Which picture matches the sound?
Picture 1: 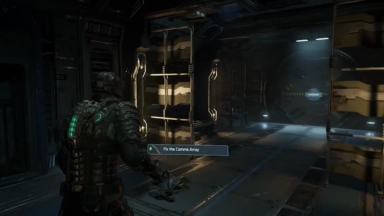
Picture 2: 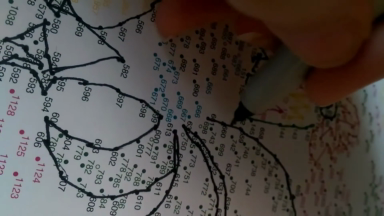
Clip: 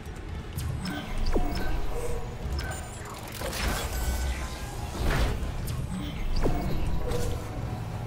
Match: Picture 1